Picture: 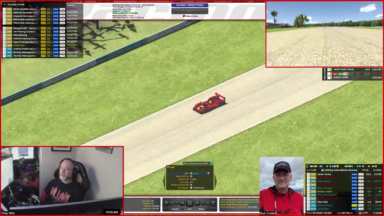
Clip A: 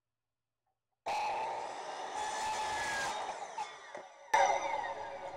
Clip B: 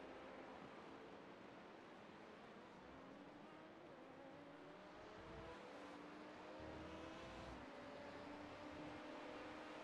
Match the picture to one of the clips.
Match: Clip B